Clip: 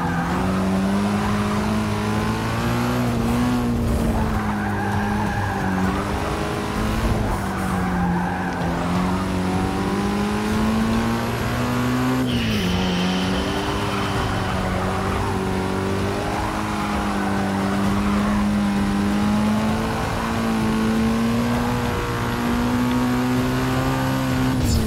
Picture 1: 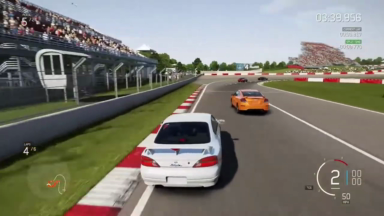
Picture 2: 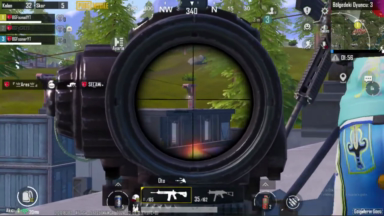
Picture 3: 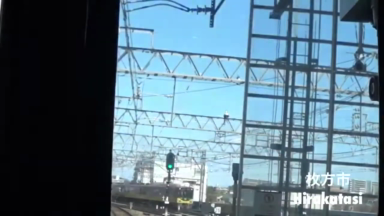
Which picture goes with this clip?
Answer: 1